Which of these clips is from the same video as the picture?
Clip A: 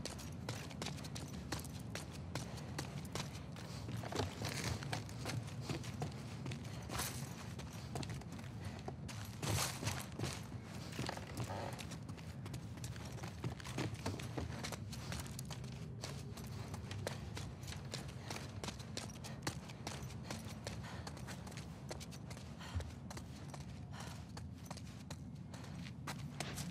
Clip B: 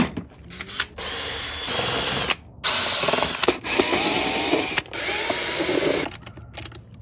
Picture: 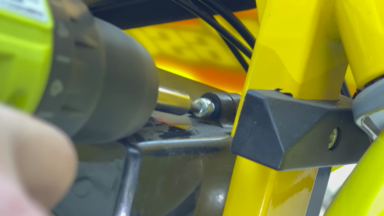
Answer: B